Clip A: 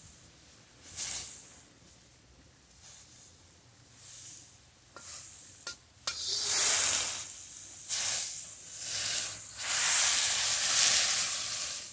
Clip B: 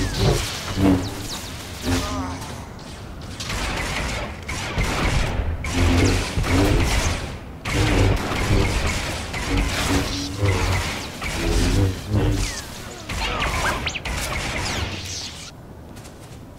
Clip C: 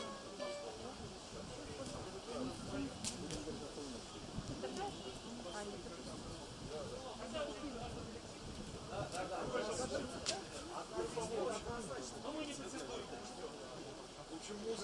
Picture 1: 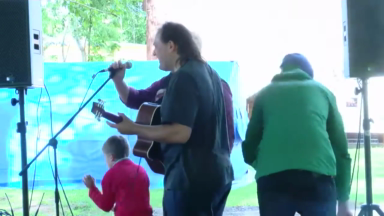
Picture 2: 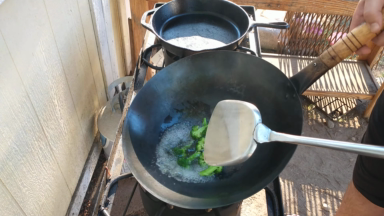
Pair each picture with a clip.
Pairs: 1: C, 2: A